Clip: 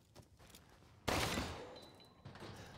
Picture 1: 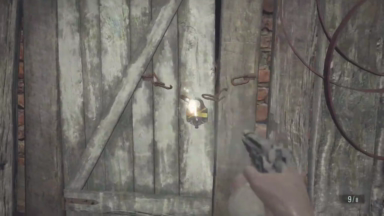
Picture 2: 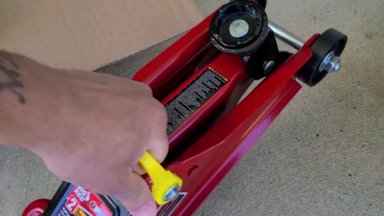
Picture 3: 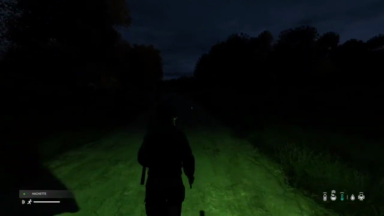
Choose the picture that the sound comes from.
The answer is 1